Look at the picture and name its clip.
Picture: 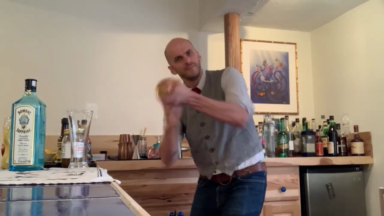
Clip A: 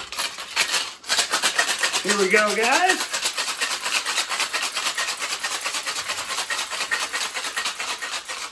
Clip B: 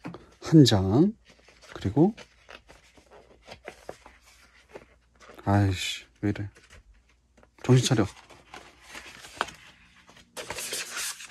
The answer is A